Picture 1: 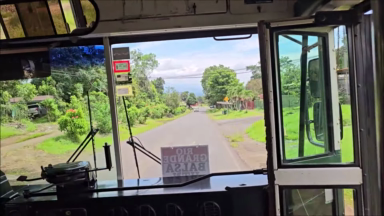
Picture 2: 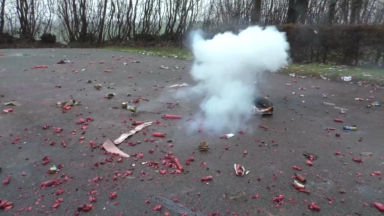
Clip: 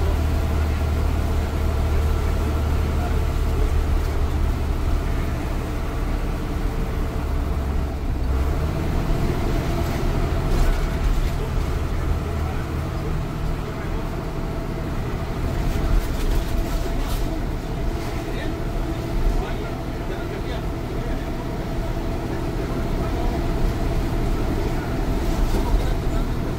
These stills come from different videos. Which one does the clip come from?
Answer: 1